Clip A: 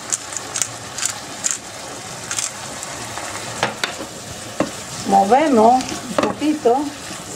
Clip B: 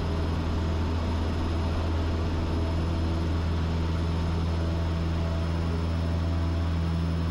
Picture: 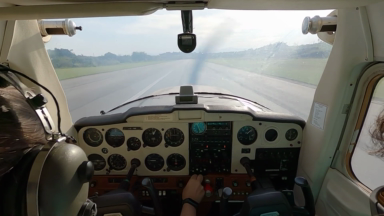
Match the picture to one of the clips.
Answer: B